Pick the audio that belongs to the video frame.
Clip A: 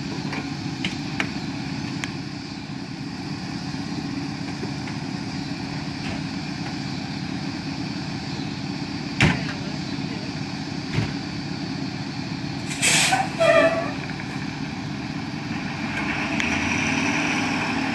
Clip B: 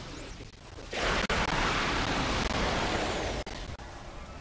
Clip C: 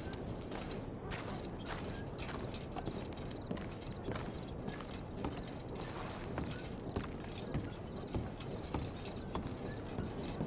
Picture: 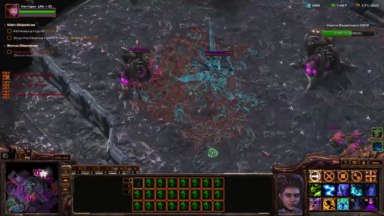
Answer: B